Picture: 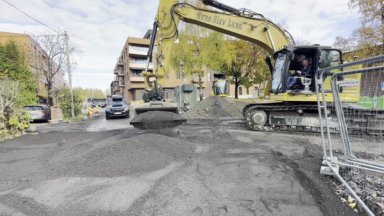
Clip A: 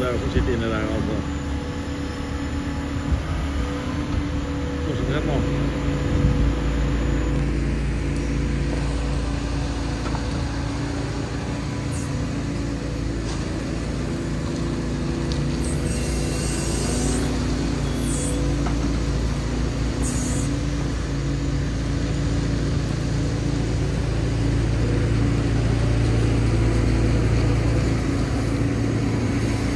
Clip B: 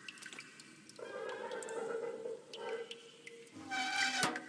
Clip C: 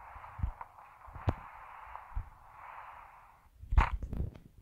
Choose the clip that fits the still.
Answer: A